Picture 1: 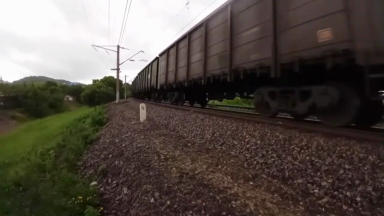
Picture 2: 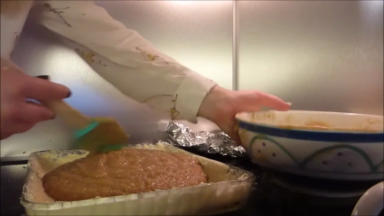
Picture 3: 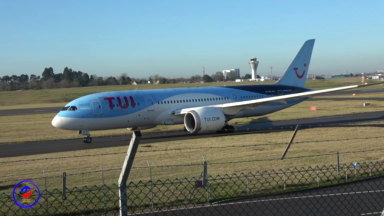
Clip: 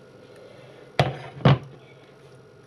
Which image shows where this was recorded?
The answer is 2